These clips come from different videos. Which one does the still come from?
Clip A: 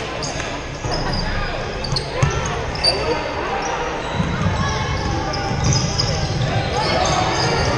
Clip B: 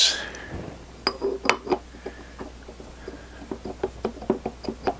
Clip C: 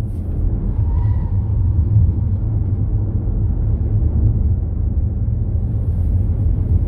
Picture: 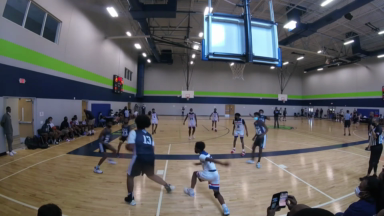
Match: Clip A